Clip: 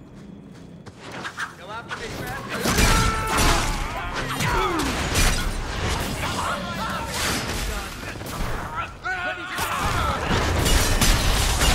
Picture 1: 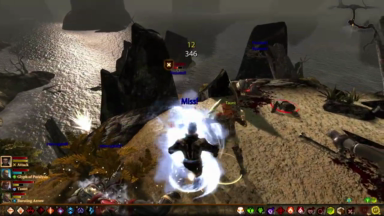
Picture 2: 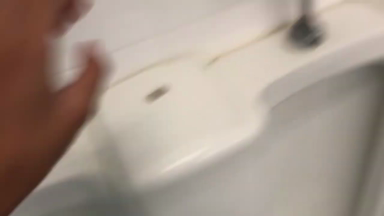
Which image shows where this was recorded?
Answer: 1